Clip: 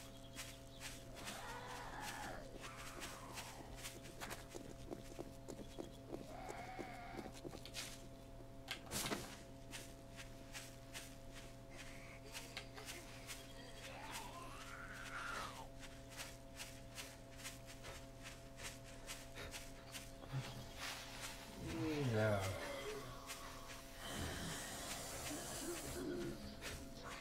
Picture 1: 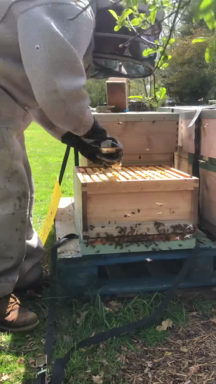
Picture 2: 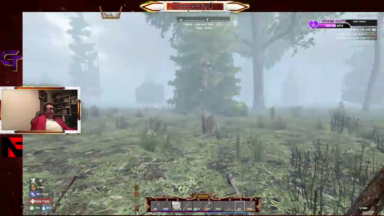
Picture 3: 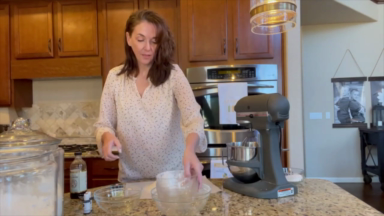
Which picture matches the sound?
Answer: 2